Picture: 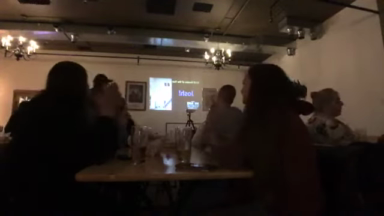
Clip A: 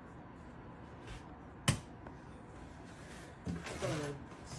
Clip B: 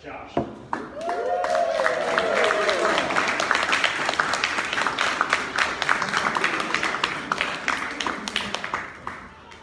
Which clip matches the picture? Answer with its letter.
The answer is B